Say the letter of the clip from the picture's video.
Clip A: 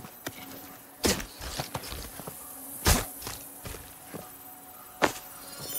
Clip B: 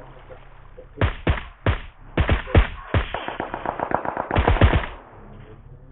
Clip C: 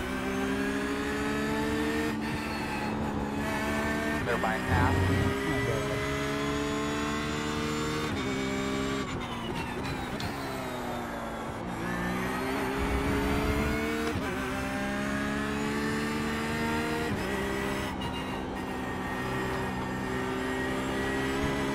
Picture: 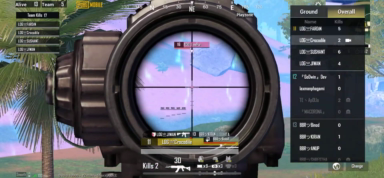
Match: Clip B